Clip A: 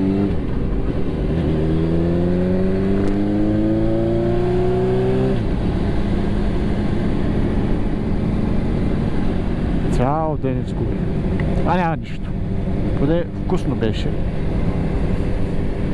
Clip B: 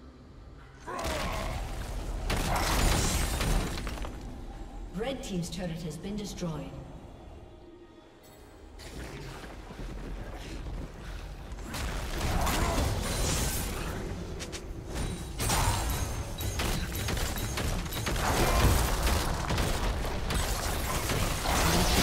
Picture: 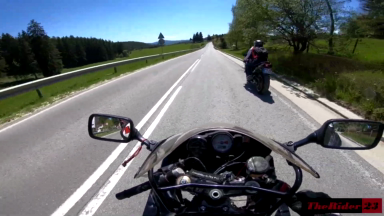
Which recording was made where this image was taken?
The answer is A